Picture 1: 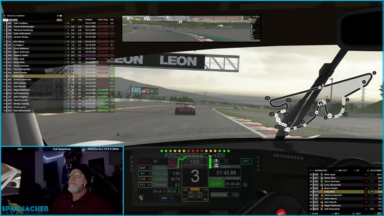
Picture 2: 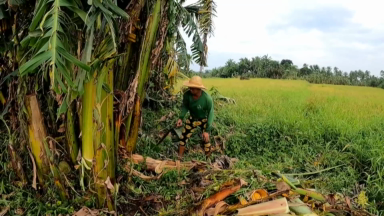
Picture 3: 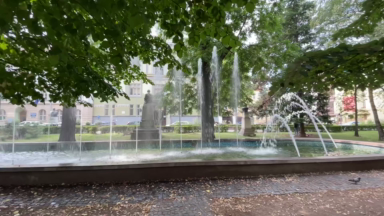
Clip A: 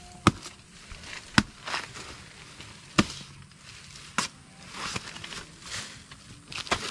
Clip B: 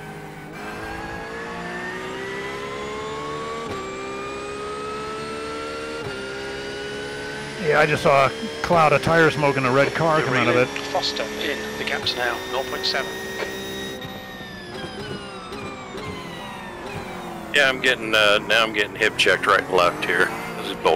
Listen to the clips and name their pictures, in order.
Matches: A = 2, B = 1